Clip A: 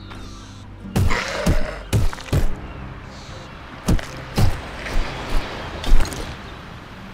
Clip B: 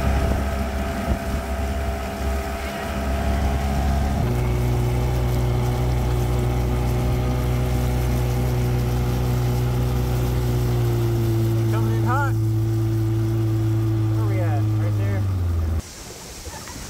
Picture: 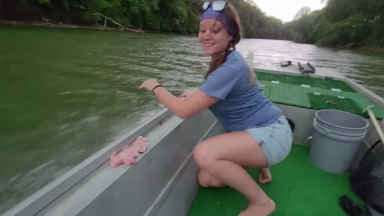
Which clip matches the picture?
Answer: B